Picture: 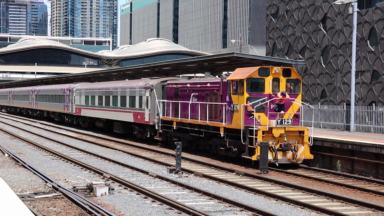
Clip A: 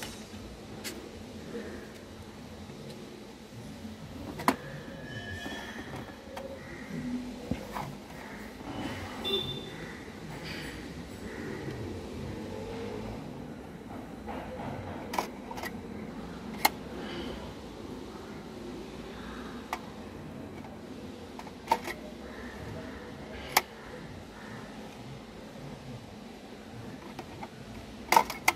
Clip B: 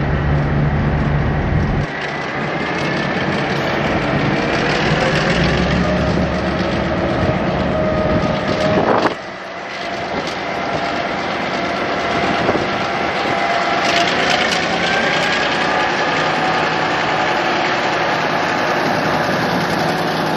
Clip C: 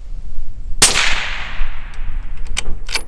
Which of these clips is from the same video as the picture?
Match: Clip B